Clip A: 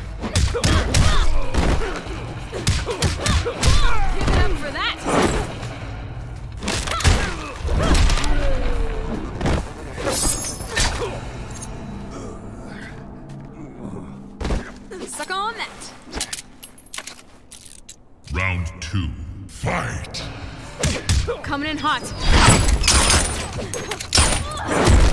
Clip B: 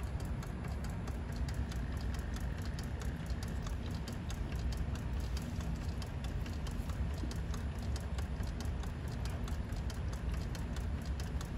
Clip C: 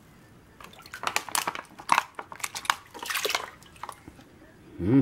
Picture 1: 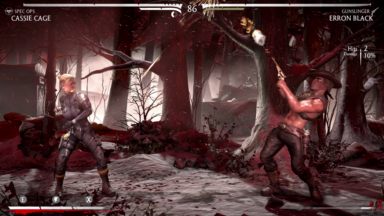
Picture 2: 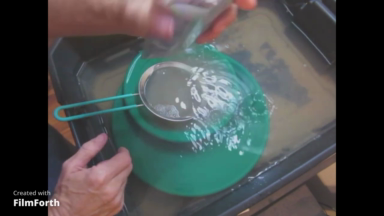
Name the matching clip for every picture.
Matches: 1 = A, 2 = C